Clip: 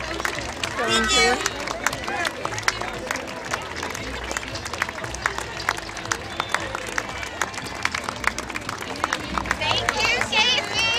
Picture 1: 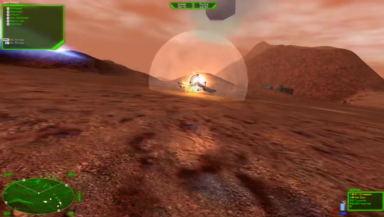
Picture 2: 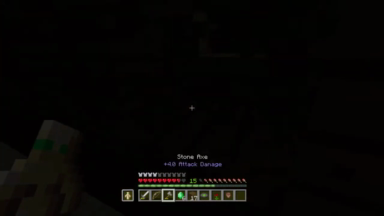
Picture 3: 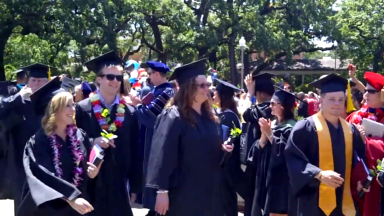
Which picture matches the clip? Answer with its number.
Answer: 3